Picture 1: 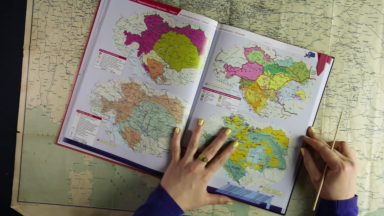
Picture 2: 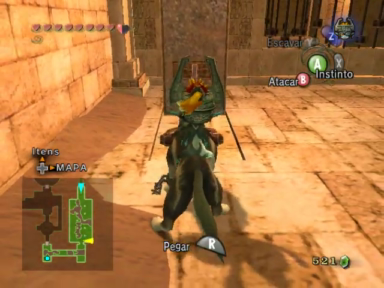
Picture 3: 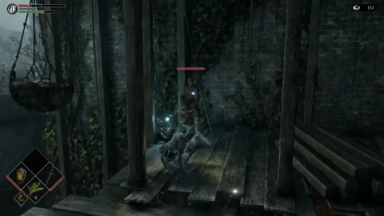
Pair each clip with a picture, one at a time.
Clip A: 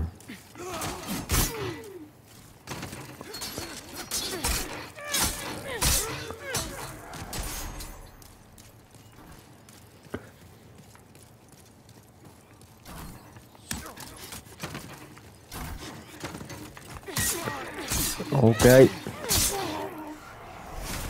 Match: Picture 3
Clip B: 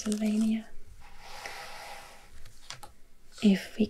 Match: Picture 1